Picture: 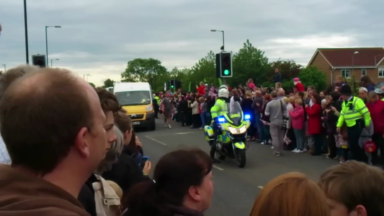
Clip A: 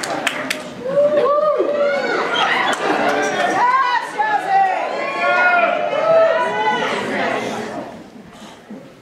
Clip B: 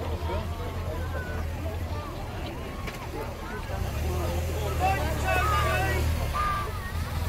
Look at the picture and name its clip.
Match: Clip B